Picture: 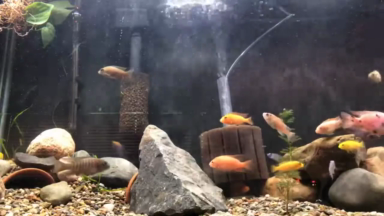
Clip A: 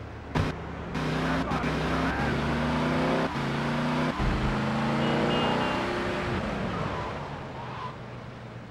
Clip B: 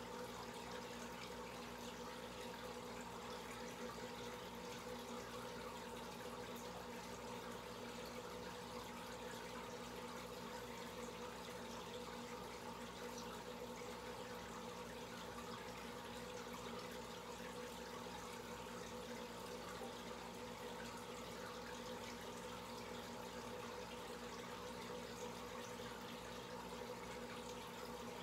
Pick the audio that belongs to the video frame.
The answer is B